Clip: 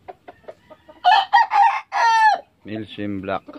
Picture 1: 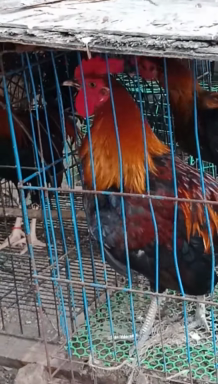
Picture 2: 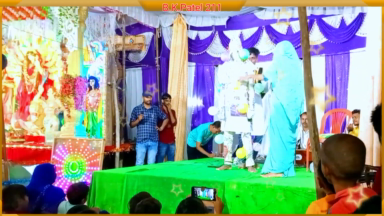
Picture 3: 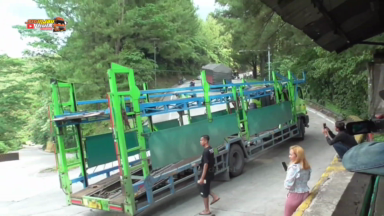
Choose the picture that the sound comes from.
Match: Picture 1